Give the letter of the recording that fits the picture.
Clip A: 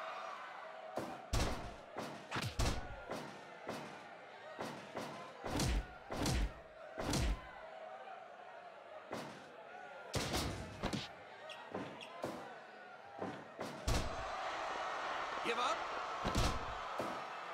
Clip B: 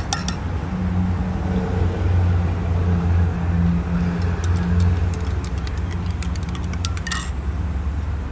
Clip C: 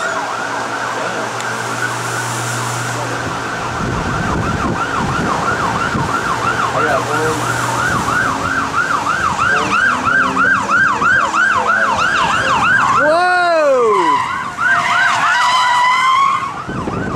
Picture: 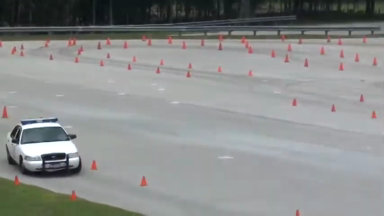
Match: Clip C